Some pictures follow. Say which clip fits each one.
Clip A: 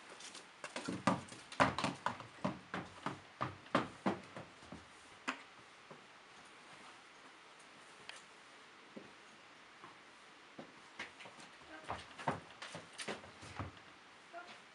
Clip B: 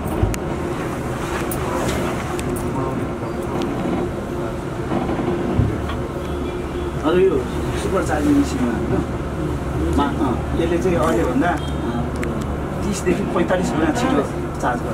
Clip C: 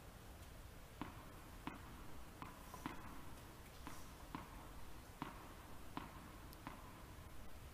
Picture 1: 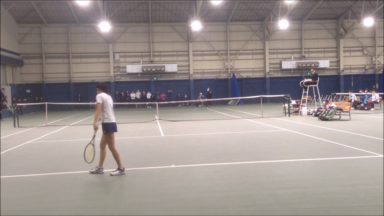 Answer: C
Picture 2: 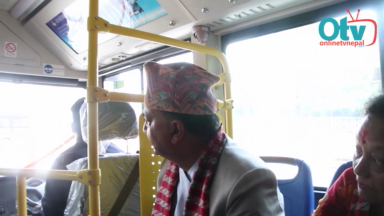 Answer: B